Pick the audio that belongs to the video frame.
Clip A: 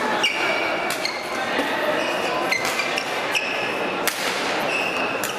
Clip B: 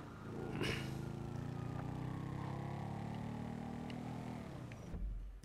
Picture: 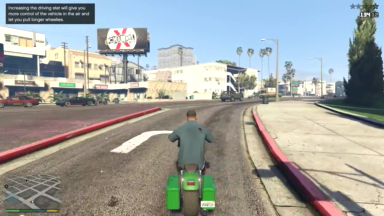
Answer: B